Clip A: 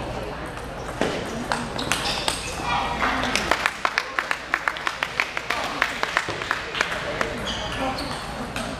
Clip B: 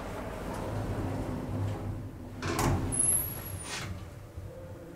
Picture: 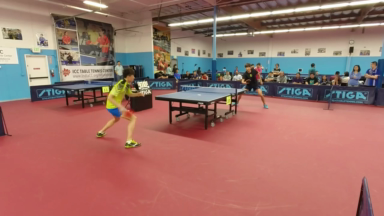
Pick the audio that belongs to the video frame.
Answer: A